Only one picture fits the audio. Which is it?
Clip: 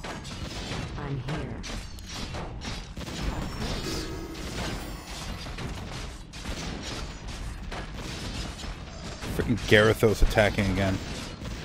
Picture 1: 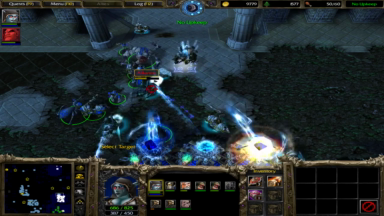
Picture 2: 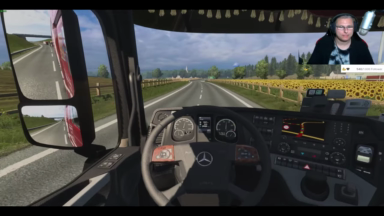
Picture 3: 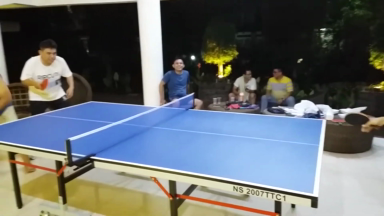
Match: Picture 1